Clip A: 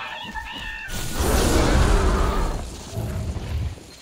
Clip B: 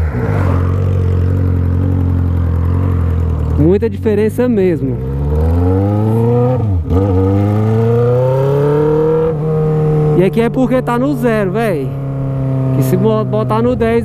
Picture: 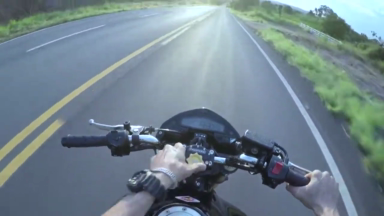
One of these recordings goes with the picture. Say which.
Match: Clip B